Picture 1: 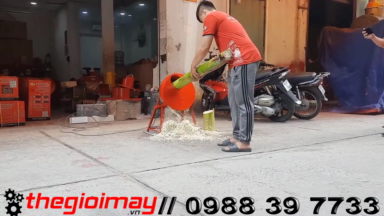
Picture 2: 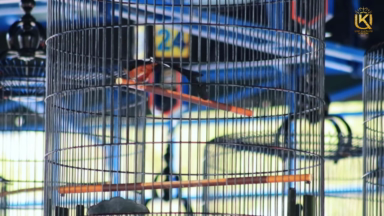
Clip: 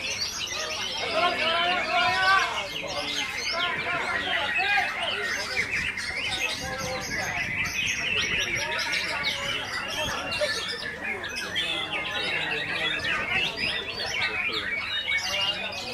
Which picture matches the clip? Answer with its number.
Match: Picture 2